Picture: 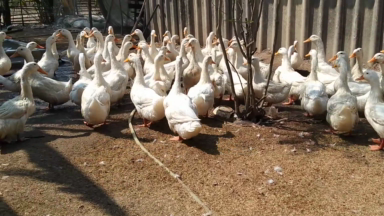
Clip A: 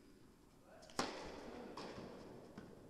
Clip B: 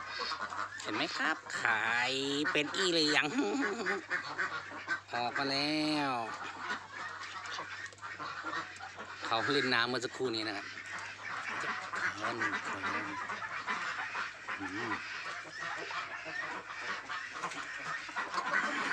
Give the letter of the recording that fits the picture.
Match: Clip B